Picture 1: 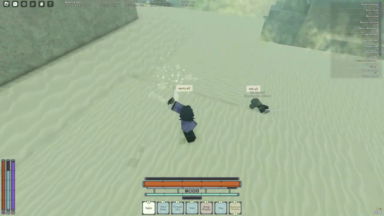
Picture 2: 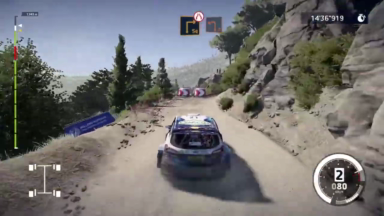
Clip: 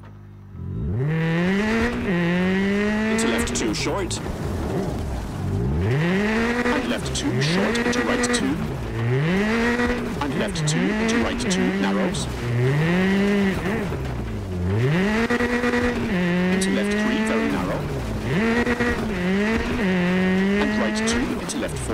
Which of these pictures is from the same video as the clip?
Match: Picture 2